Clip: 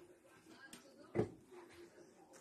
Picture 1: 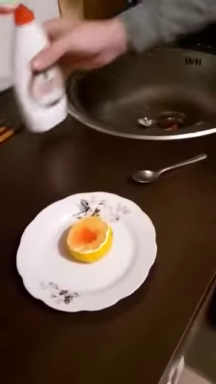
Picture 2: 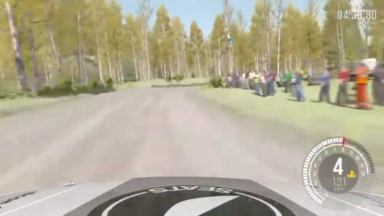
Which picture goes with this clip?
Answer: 1